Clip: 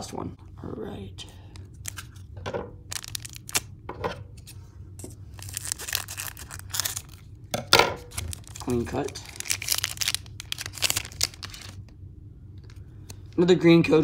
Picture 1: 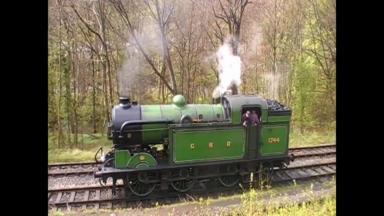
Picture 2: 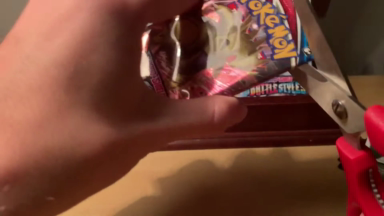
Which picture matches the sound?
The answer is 2